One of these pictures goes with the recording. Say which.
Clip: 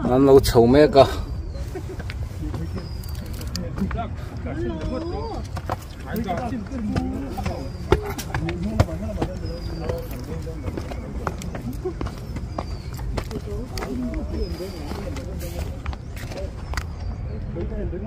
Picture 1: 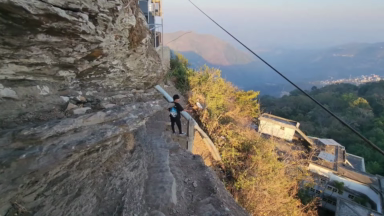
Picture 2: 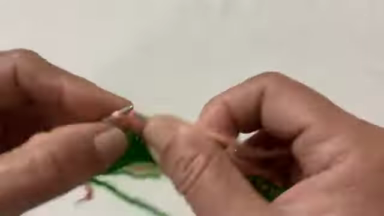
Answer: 1